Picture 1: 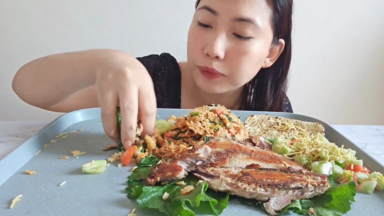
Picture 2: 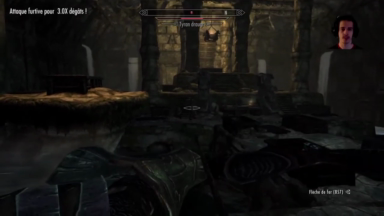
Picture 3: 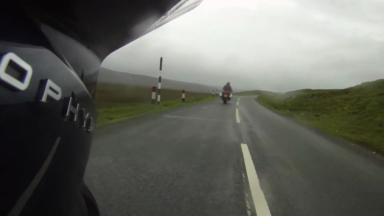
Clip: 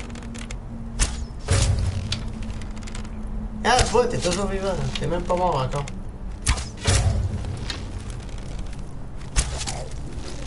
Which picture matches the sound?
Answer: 2